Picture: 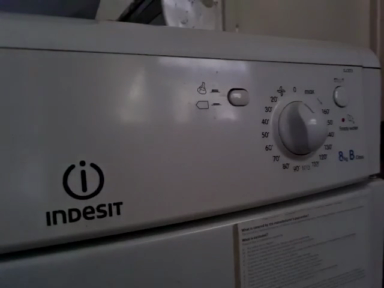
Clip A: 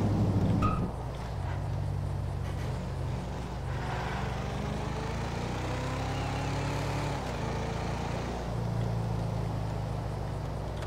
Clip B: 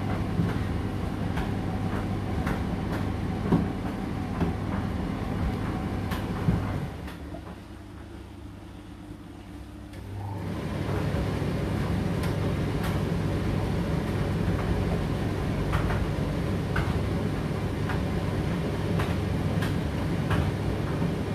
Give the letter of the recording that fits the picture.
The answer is B